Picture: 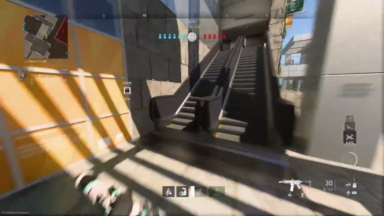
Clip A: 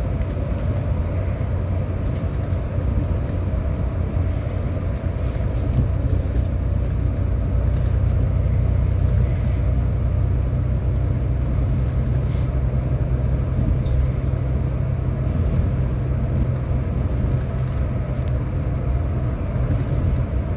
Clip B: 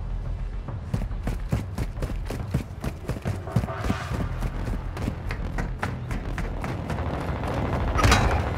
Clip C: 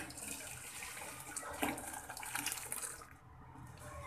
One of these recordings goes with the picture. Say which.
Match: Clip B